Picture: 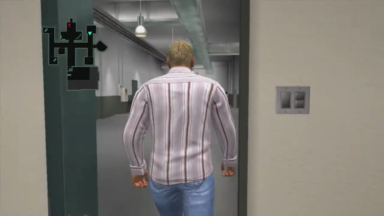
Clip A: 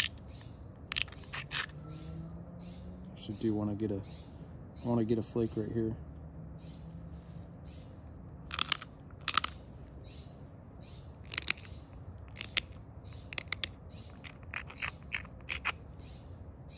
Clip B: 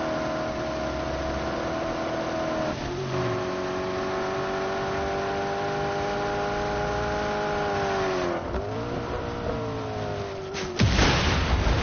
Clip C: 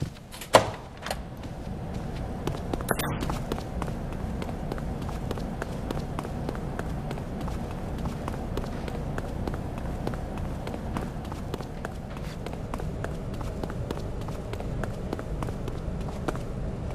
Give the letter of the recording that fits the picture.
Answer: C